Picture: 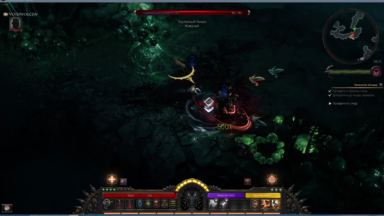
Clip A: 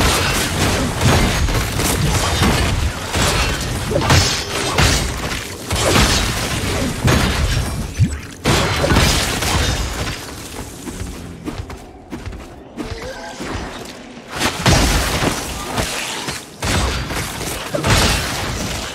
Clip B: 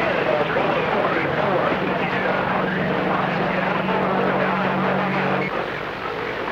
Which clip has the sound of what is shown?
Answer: A